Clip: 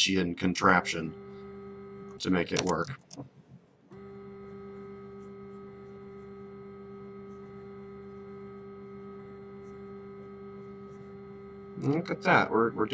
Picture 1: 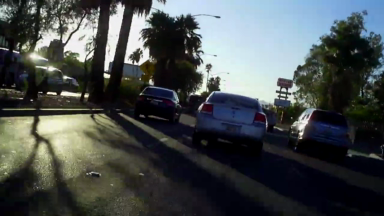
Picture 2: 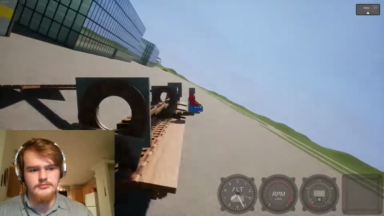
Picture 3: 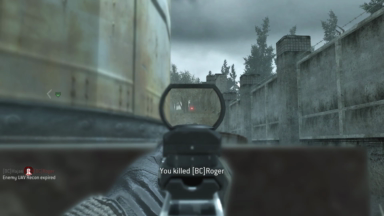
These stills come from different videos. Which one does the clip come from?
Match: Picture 2